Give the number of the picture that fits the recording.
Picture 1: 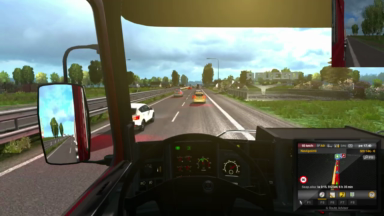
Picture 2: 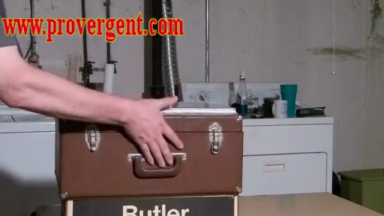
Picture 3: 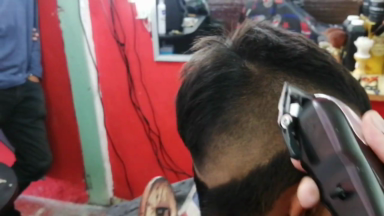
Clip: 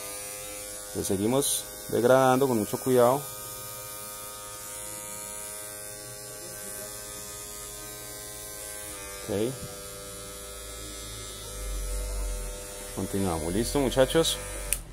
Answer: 3